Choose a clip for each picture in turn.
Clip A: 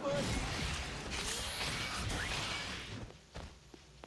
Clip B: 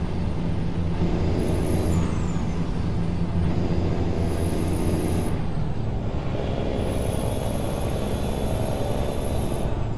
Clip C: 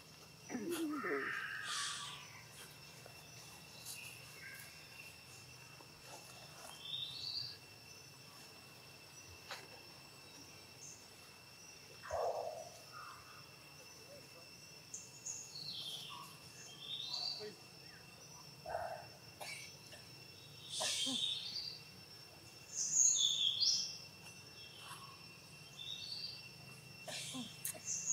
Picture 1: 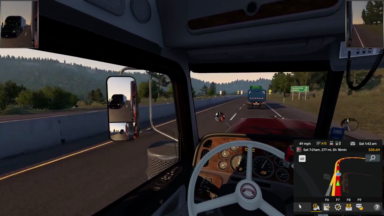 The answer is B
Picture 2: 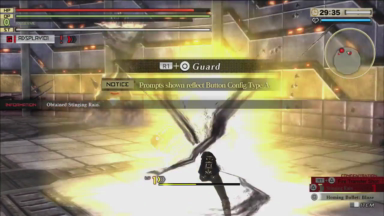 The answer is A